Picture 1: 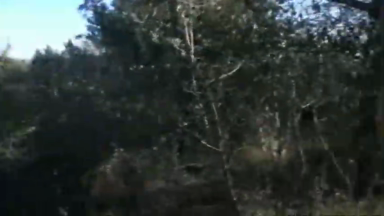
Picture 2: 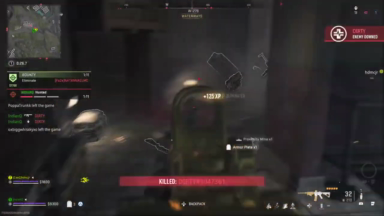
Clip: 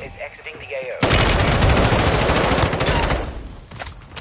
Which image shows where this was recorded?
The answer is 2